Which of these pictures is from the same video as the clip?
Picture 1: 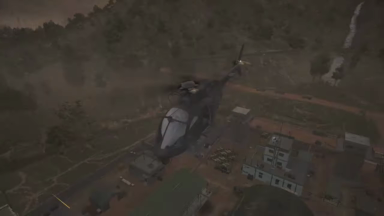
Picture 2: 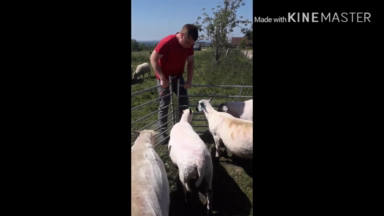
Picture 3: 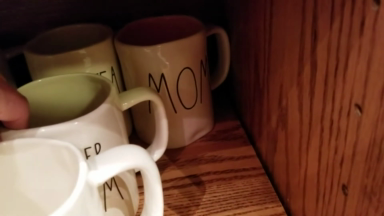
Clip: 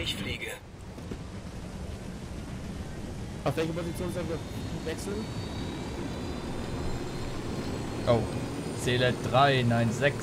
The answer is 1